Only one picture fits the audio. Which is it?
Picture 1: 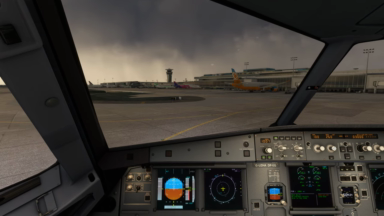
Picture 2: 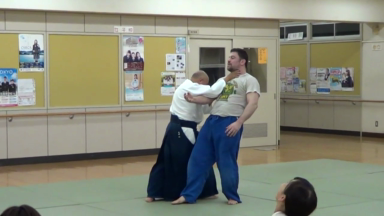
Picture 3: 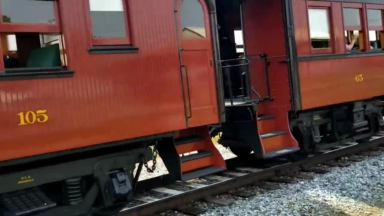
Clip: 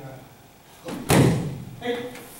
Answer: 2